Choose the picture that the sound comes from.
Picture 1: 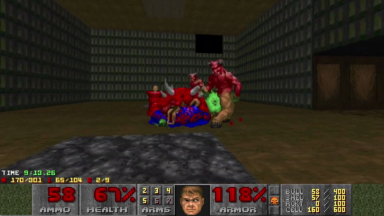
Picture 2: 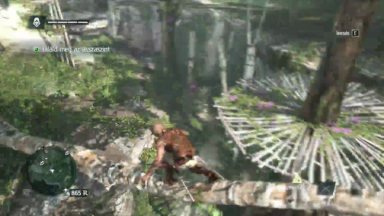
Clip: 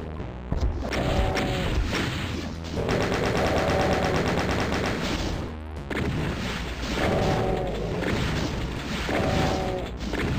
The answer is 1